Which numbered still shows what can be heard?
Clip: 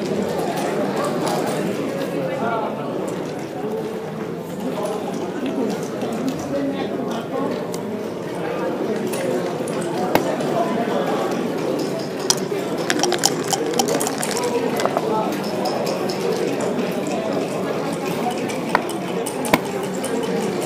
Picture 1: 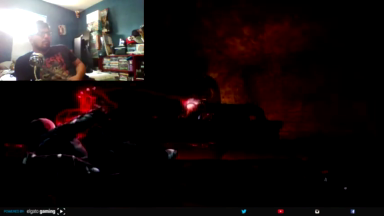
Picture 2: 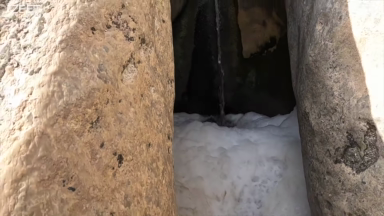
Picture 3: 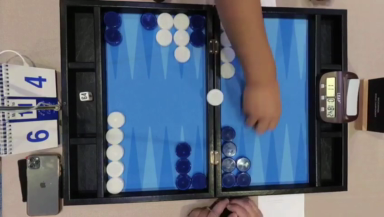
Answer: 3